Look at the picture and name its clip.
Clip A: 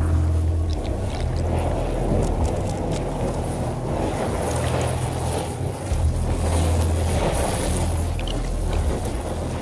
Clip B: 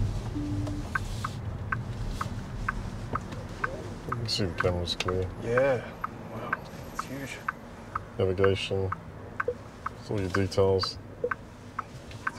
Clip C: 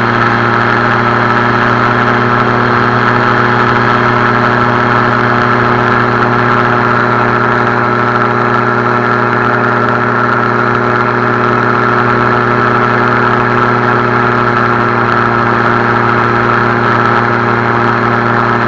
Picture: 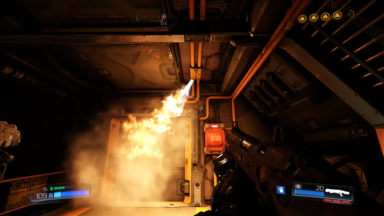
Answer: A